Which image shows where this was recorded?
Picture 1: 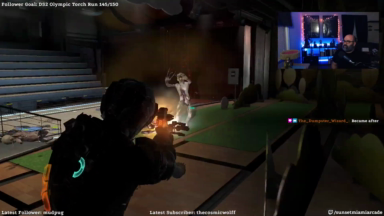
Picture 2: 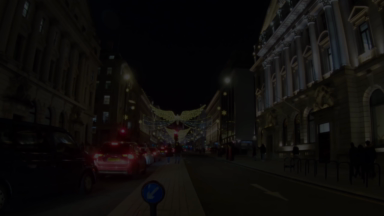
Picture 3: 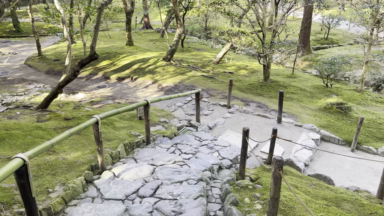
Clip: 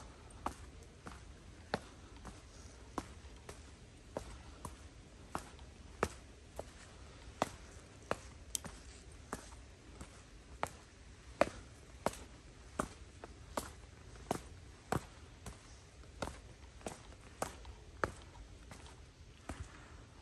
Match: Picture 3